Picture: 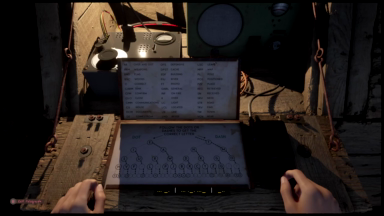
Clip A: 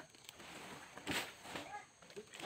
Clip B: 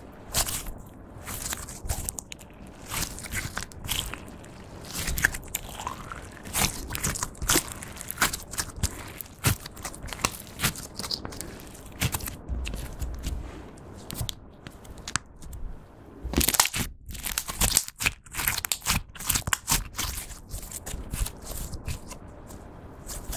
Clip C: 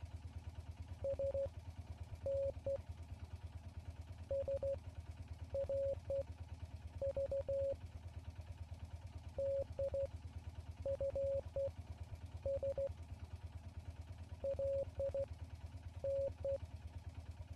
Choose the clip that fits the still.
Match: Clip C